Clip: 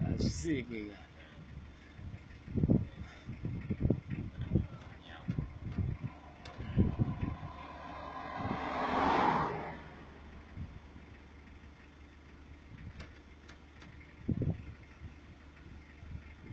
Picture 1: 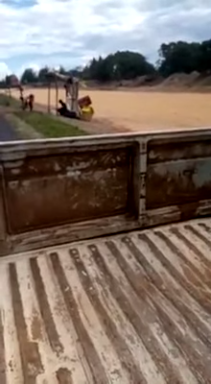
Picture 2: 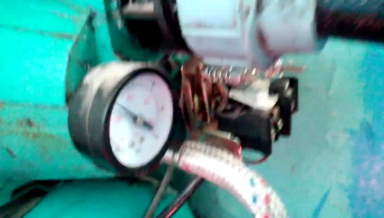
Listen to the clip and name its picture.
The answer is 1